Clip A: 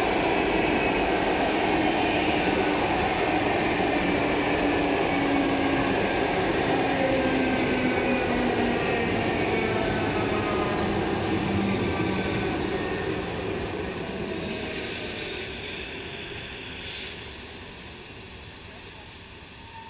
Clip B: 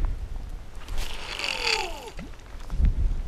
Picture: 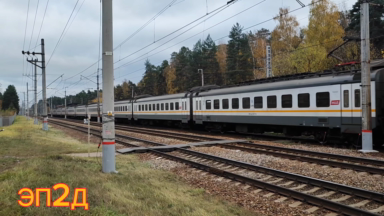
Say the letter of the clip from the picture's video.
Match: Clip A